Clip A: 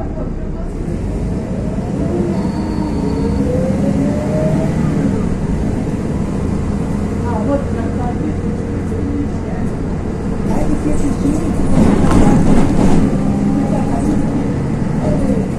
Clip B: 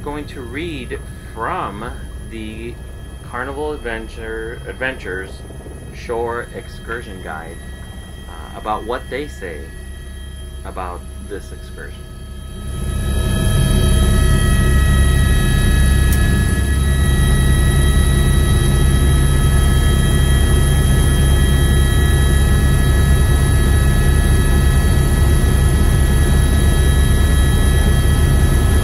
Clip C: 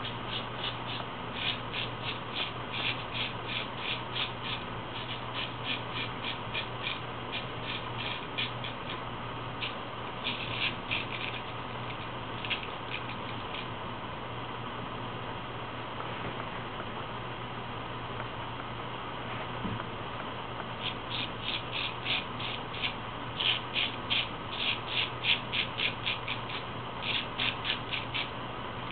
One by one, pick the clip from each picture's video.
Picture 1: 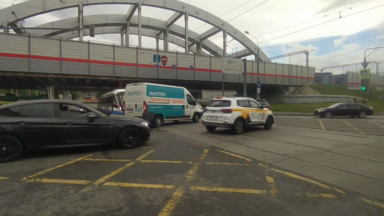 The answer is A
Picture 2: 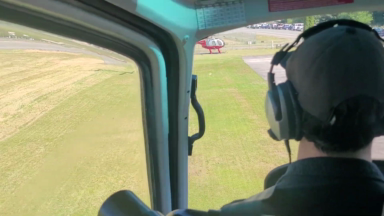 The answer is B